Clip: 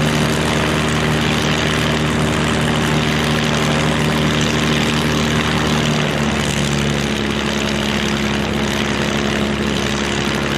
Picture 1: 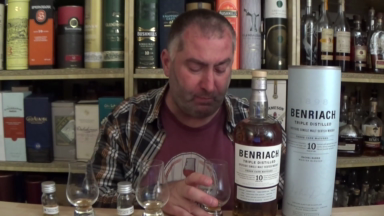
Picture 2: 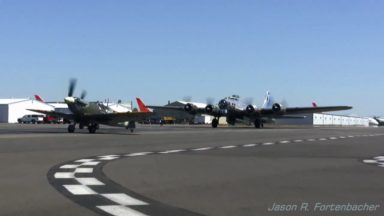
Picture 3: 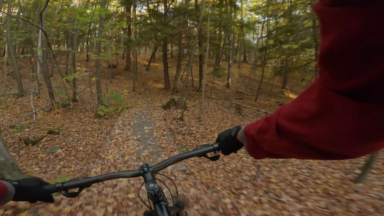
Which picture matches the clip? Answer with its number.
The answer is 2